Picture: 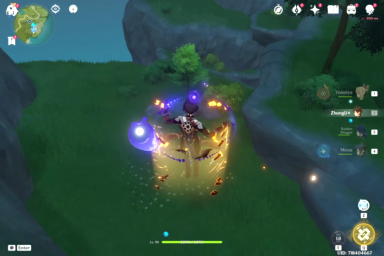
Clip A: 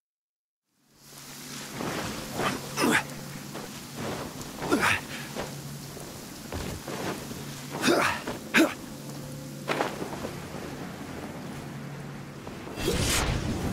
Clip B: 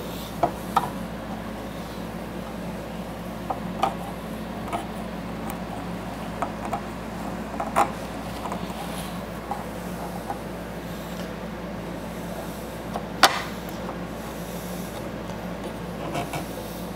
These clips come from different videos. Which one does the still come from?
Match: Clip A